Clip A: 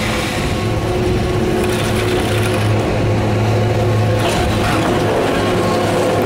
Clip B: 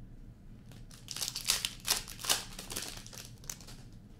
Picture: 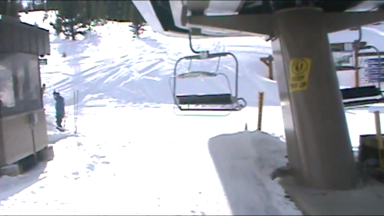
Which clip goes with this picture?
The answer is A